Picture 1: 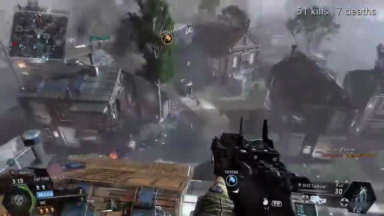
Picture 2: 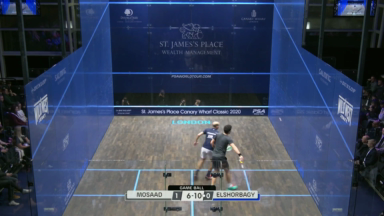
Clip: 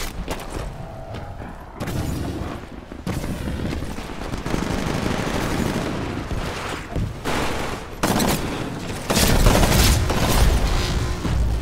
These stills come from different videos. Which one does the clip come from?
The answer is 1